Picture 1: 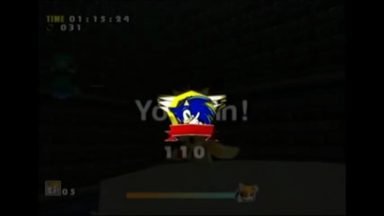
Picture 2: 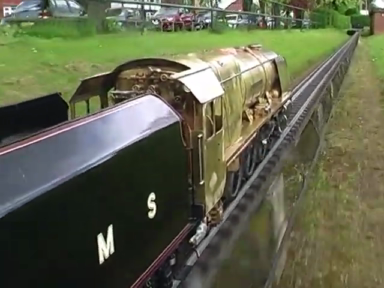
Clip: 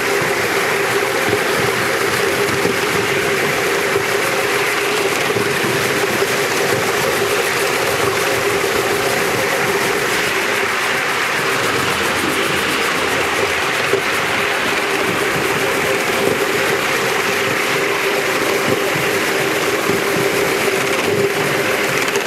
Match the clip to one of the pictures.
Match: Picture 2